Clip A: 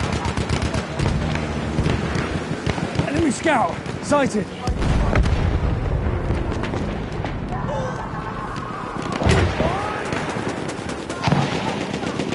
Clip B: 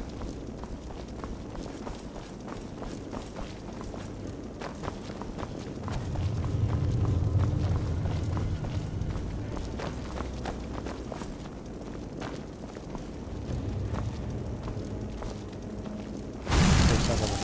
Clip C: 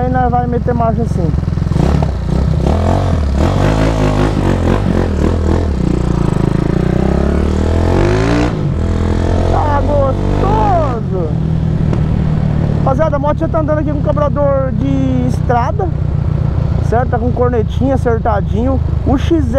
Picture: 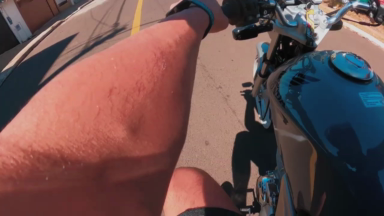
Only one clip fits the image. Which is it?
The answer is C